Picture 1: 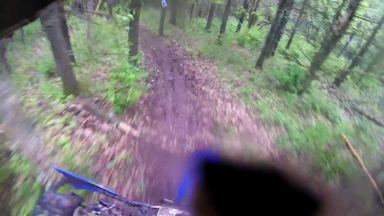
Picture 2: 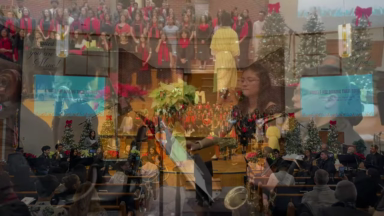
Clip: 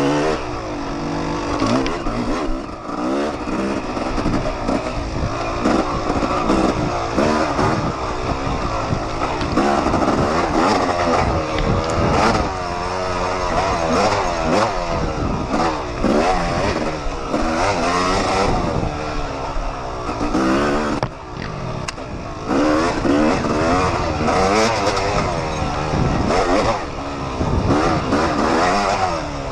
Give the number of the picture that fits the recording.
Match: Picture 1